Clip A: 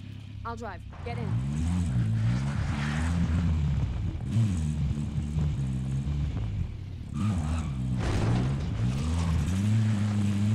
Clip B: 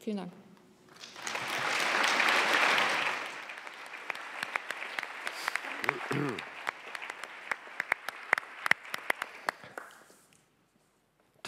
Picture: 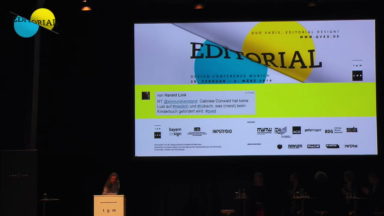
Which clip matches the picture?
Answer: B